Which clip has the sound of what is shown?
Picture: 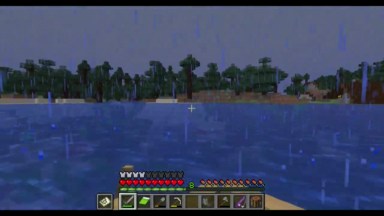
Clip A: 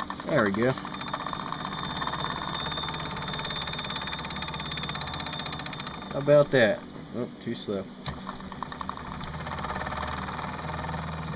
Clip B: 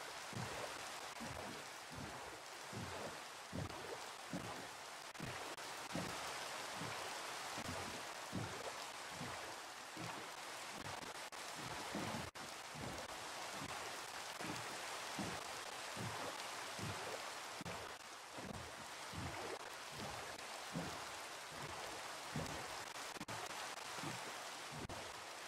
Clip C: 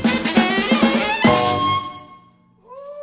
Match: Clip B